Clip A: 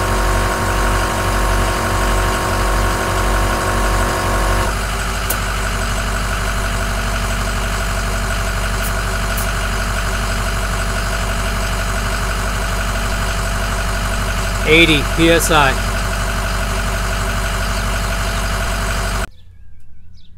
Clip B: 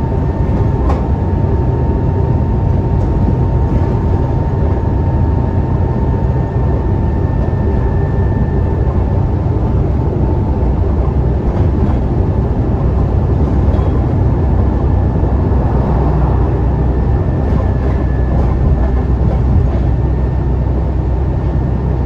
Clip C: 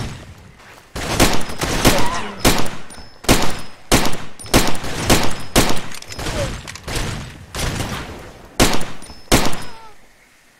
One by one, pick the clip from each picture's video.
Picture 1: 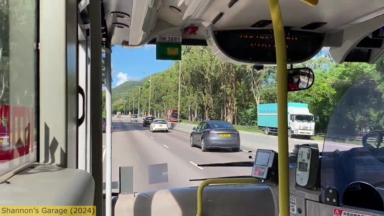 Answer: B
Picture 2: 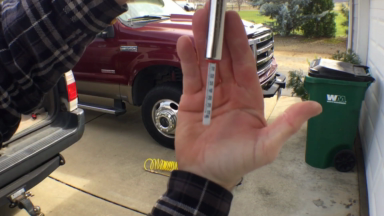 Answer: A